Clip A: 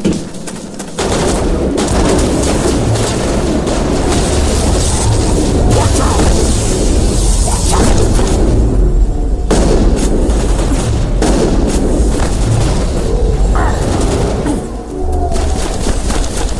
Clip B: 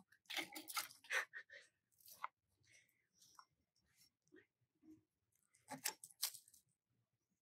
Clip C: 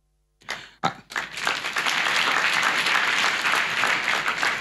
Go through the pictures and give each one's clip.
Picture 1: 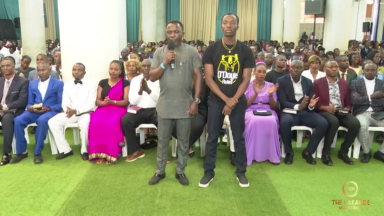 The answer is C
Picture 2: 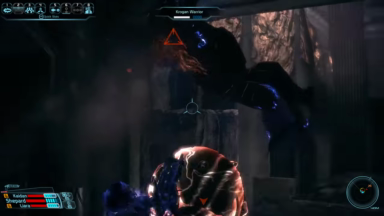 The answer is A